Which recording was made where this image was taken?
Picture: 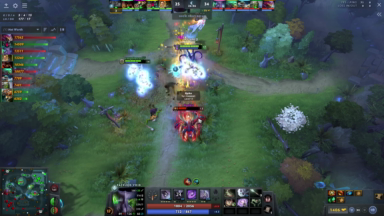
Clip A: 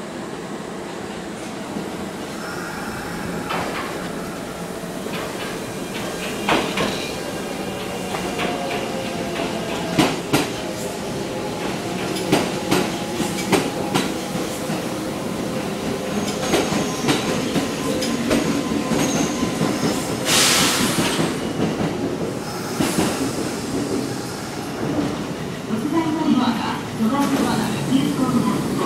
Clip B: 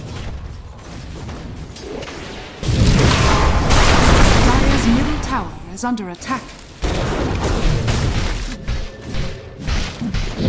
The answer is B